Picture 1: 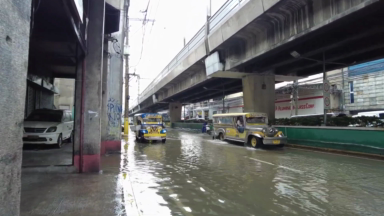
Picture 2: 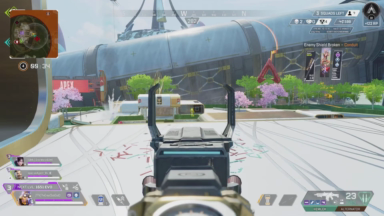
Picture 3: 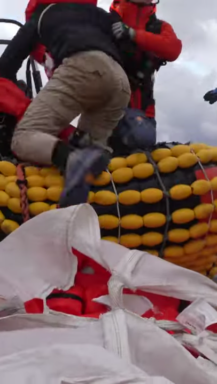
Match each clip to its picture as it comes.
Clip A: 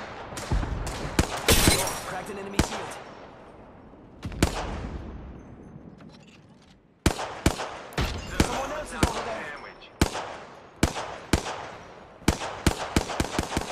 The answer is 2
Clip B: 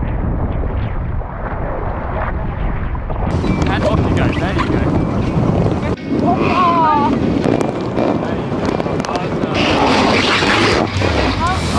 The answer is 3